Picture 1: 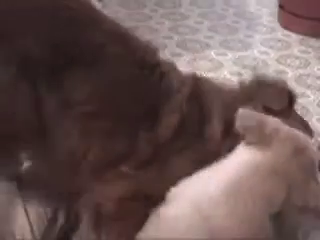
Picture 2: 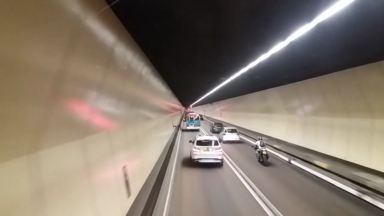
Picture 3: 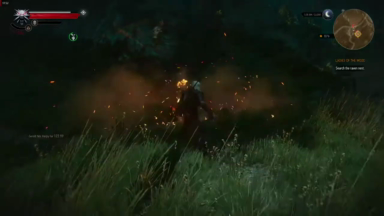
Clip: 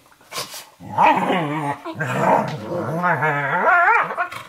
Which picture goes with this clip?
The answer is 1